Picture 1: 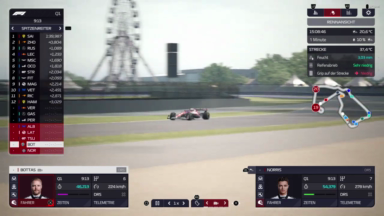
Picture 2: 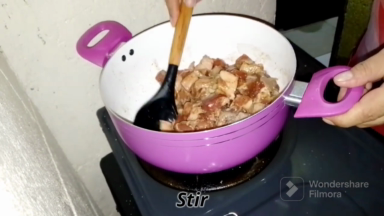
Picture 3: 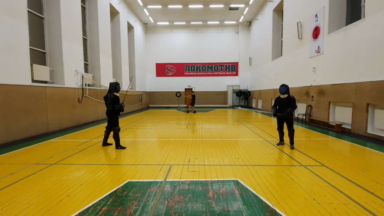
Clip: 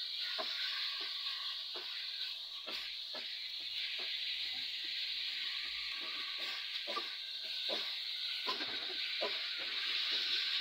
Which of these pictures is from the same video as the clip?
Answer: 2